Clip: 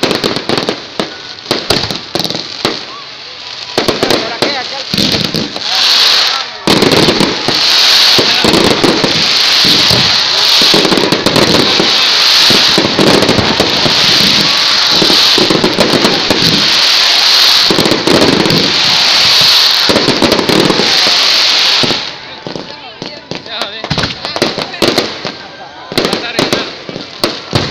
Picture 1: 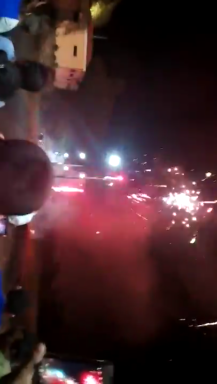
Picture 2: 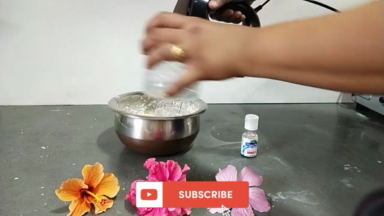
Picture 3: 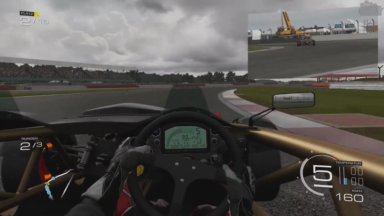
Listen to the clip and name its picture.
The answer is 1